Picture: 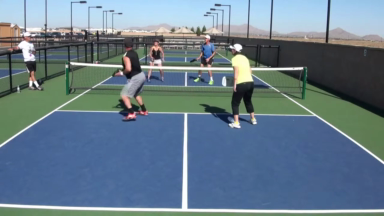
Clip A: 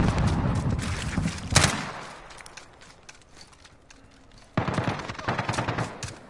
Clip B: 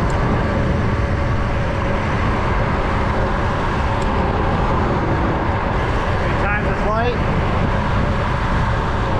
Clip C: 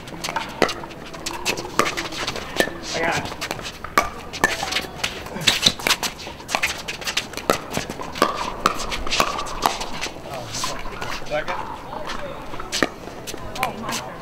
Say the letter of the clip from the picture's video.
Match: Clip C